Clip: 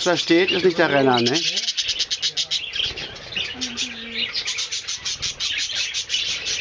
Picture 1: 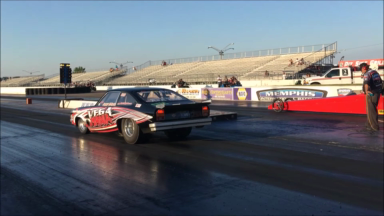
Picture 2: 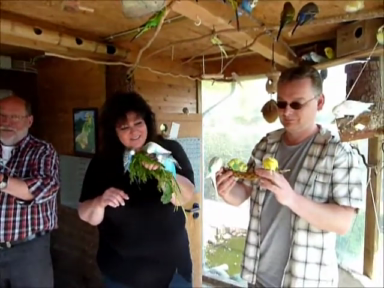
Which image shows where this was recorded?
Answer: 2